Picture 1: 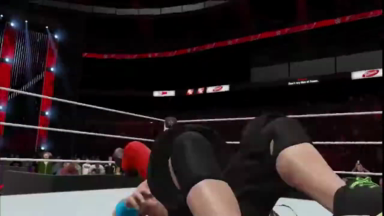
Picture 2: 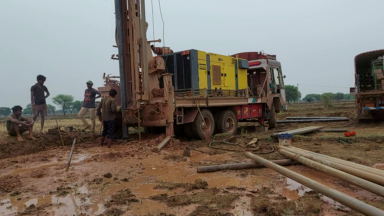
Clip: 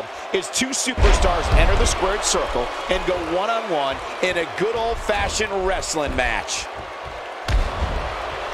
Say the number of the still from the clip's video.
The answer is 1